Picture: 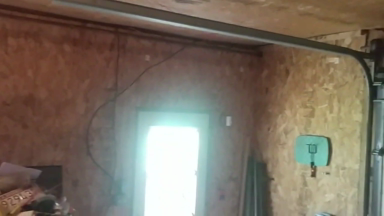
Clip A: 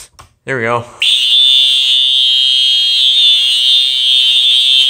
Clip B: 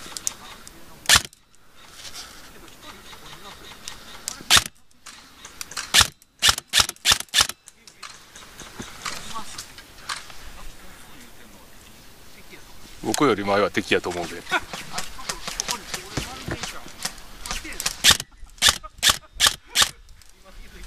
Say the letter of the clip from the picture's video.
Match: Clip A